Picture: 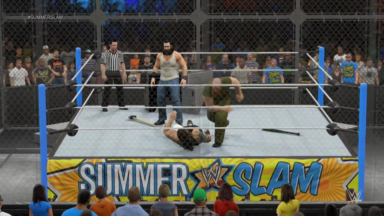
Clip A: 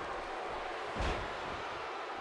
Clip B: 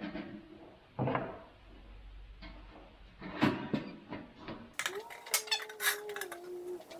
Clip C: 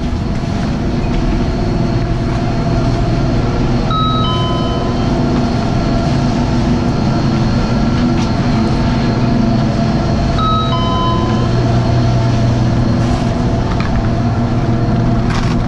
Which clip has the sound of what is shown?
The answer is A